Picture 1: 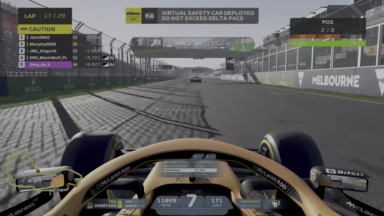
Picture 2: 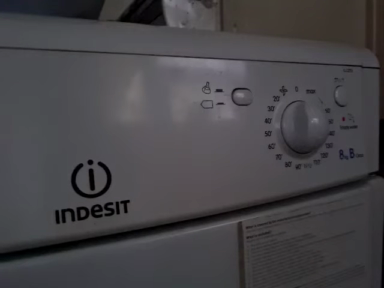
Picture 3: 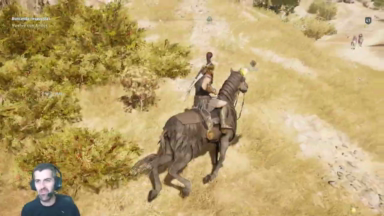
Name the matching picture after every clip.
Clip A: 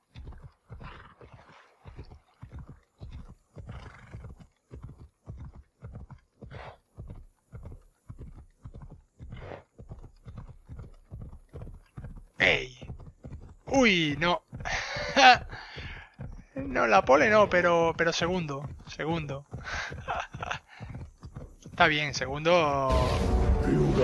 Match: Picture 3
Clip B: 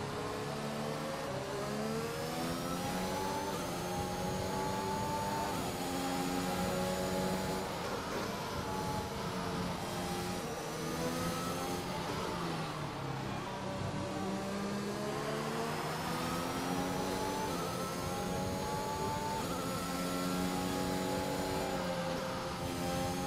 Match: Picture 1